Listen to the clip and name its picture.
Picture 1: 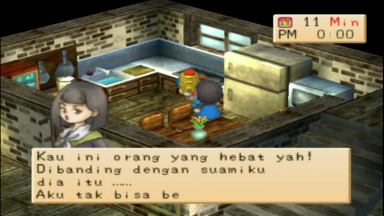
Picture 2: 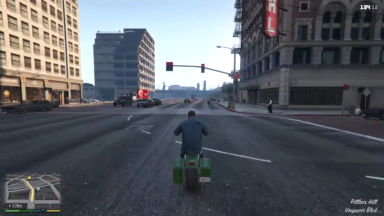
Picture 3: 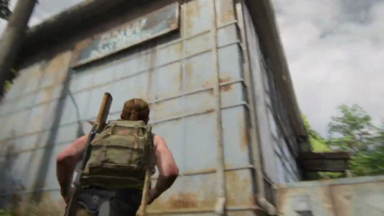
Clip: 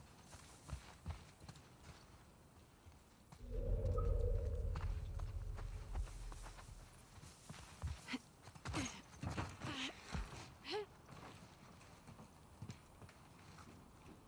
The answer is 3